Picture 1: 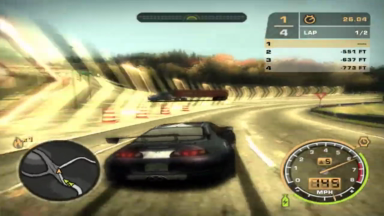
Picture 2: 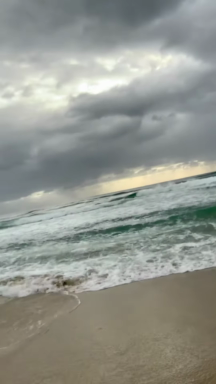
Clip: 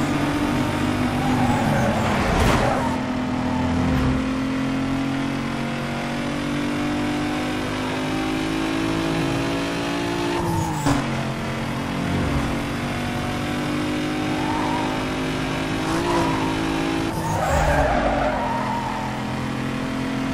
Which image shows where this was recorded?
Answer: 1